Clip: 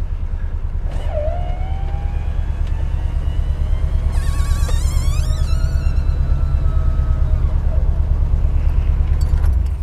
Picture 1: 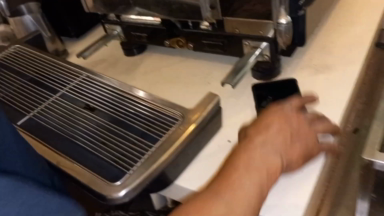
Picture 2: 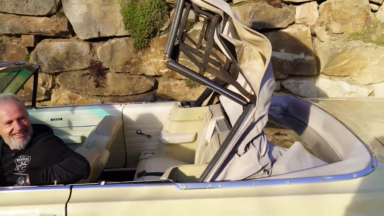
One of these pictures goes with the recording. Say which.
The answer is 2